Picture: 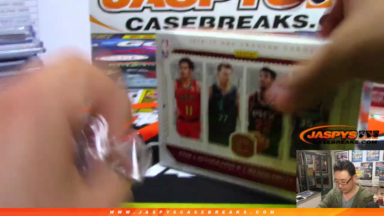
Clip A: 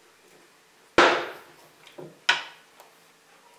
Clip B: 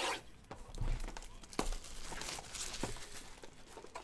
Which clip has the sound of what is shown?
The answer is B